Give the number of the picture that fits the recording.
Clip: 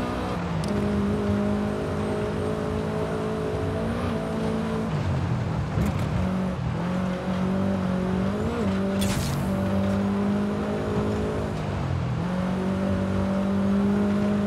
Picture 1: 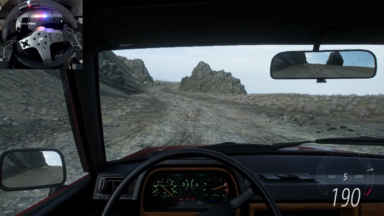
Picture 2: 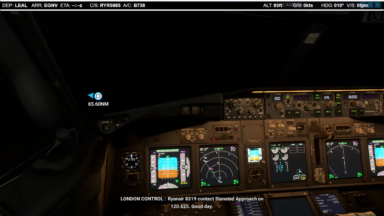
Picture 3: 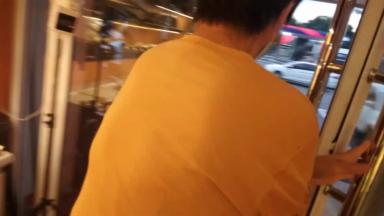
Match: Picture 1